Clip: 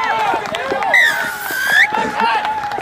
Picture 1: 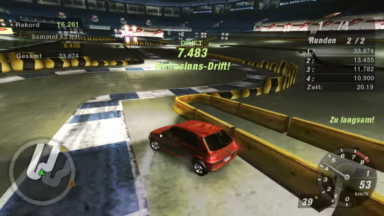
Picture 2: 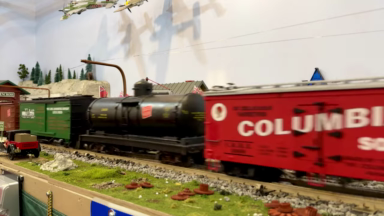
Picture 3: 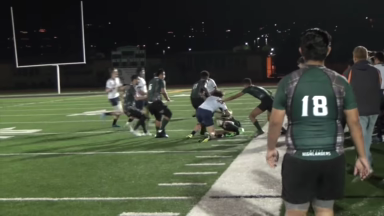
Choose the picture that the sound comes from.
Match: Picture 3